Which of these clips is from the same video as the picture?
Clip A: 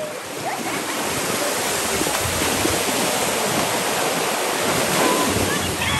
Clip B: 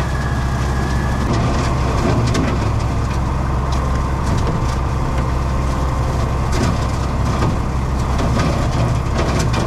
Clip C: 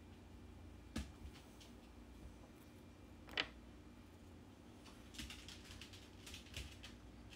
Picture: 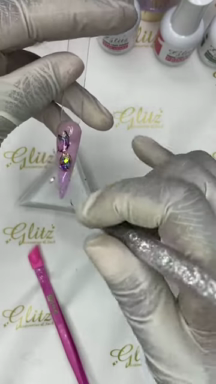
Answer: C